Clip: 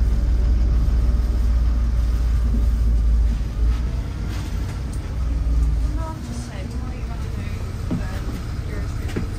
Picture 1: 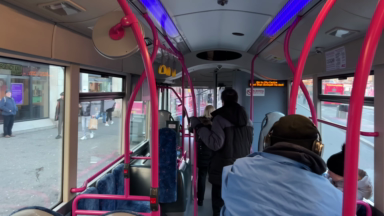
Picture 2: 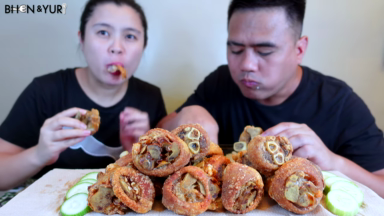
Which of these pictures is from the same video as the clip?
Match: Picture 1